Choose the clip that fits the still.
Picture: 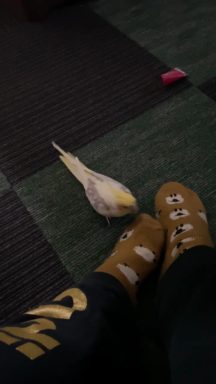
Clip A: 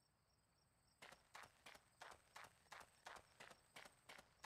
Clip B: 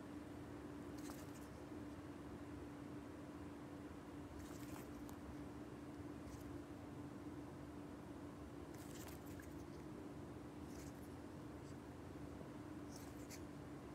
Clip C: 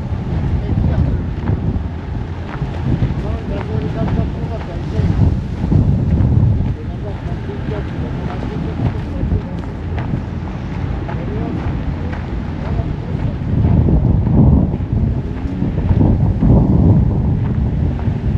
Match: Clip B